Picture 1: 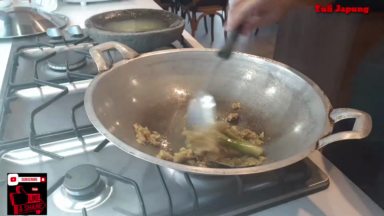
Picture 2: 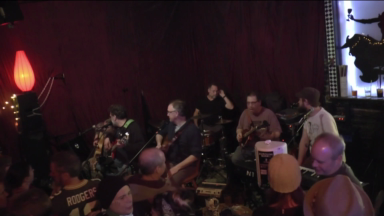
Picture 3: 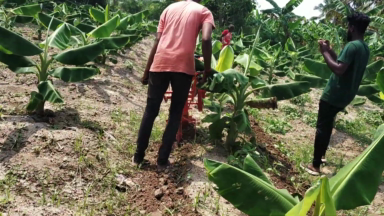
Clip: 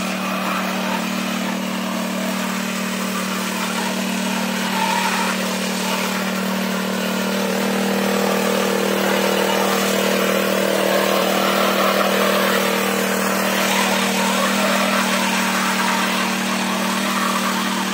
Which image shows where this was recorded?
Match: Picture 3